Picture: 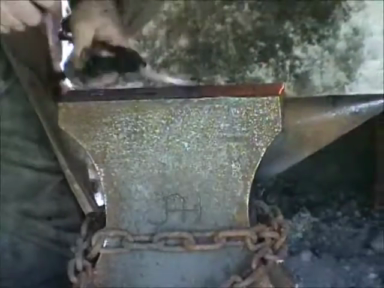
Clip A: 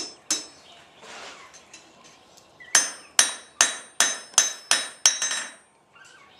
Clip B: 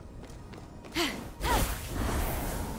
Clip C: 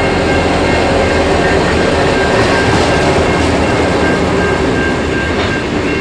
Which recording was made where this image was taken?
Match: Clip A